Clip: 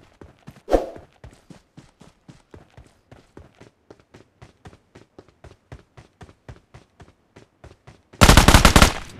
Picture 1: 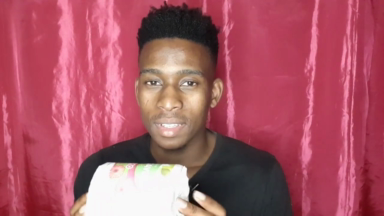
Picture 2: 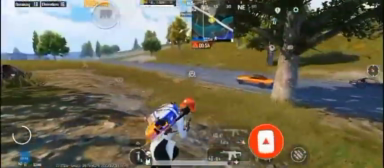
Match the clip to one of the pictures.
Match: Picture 2